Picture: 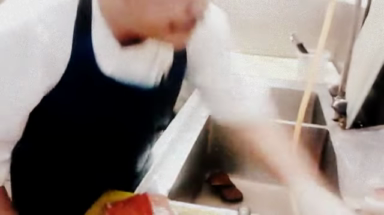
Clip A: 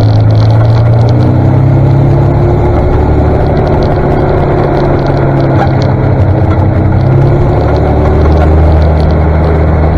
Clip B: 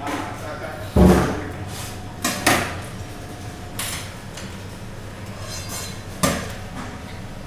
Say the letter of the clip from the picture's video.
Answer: B